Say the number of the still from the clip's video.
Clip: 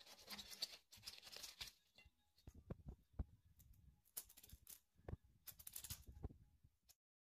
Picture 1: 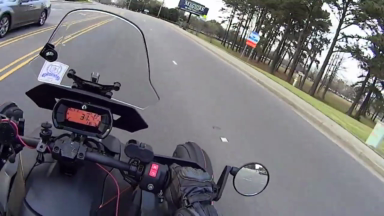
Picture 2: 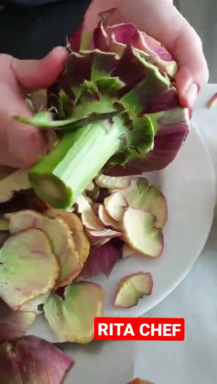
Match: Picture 2